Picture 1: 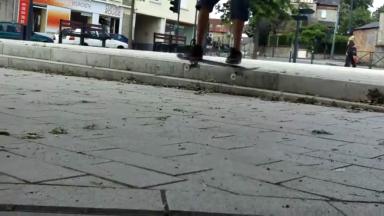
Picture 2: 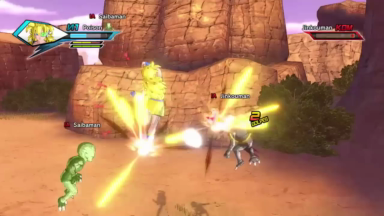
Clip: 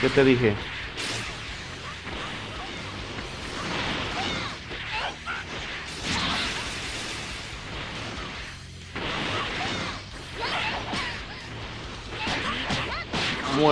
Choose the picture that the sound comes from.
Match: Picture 2